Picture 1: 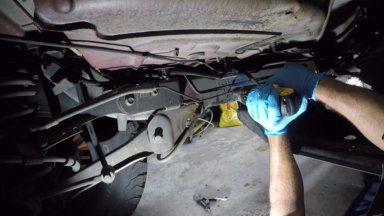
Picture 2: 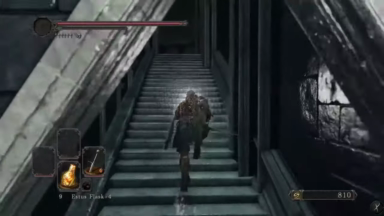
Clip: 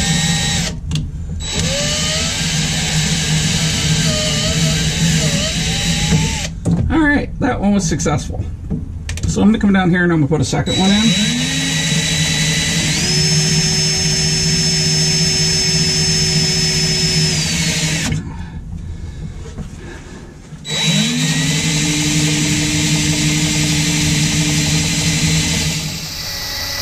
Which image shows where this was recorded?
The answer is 1